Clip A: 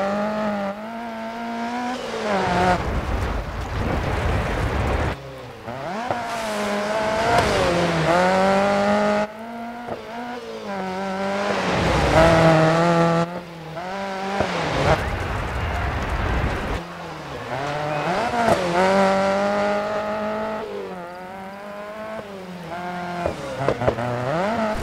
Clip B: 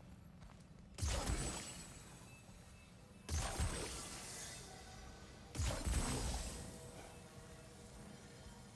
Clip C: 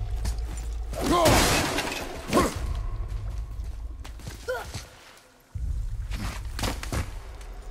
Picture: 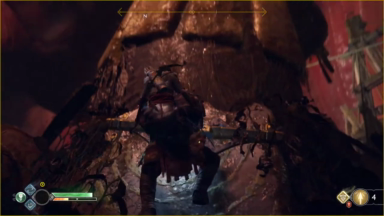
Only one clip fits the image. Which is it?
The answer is C